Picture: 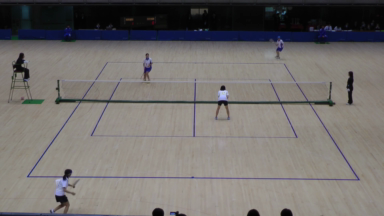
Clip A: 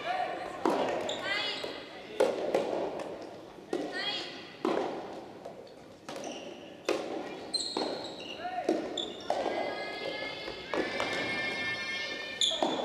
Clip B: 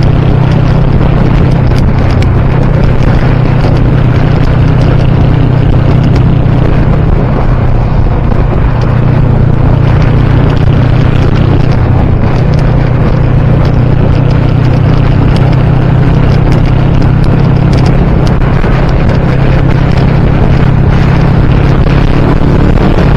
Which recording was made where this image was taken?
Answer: A